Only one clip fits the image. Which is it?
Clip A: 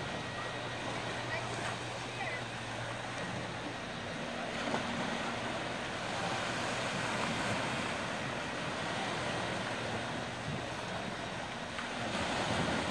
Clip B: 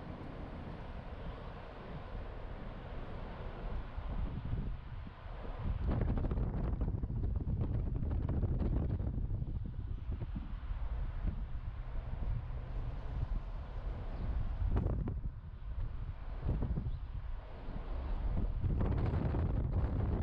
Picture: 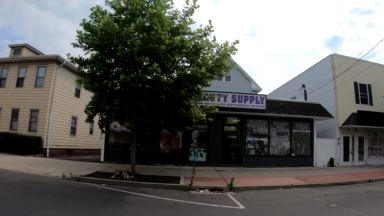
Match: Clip B